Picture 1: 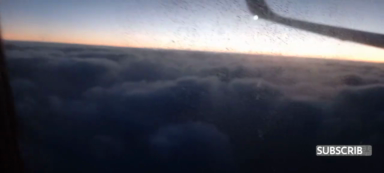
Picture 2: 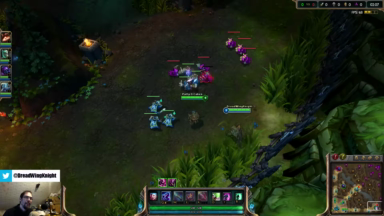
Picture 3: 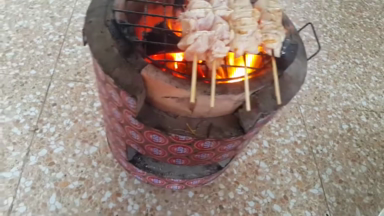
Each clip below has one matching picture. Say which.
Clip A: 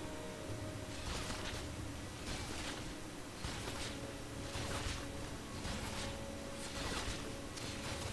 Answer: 2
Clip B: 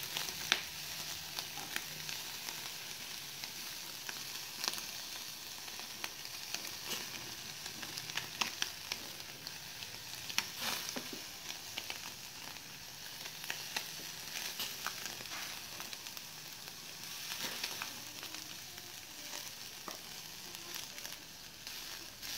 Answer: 3